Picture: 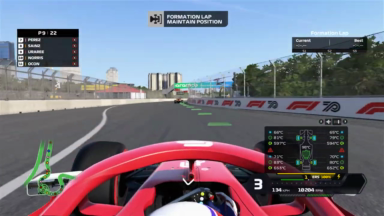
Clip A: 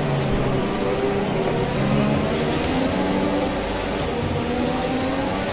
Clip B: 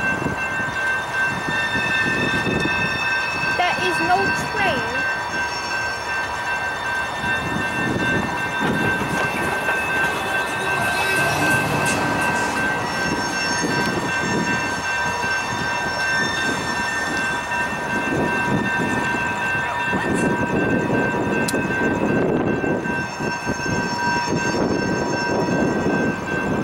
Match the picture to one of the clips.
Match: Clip A